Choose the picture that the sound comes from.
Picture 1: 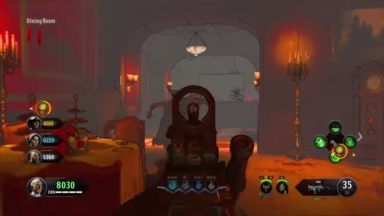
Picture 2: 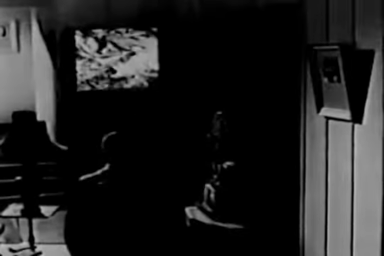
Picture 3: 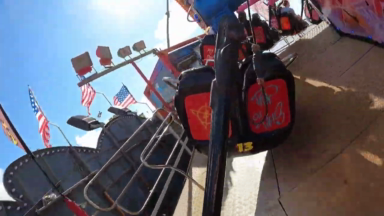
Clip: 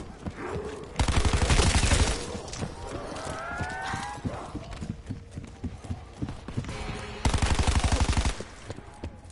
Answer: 1